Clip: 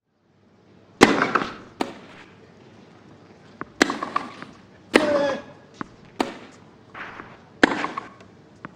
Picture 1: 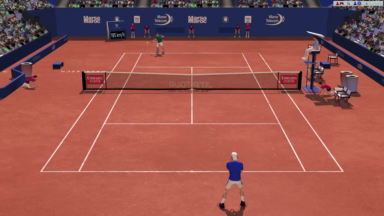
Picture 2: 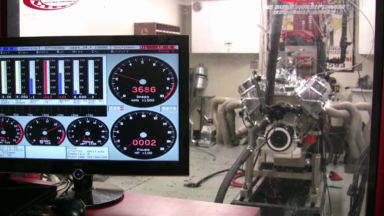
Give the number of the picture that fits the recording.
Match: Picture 1